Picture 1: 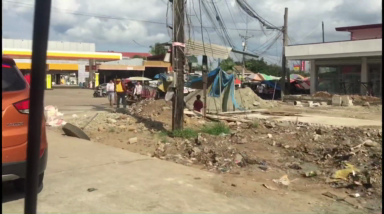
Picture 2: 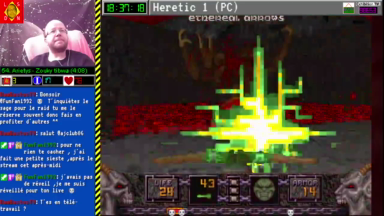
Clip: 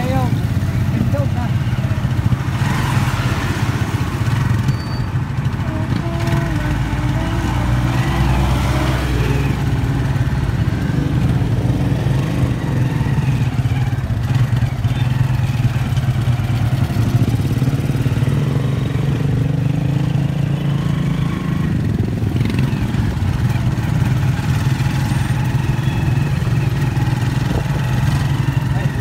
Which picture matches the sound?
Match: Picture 1